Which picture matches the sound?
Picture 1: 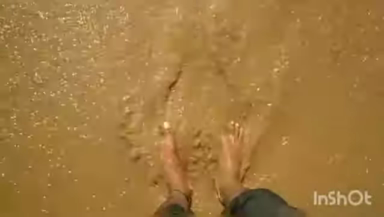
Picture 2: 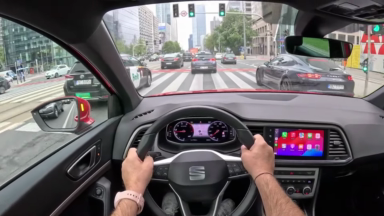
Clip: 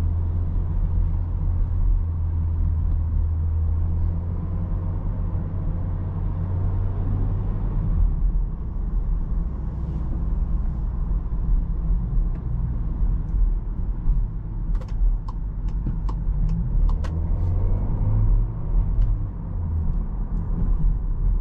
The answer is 2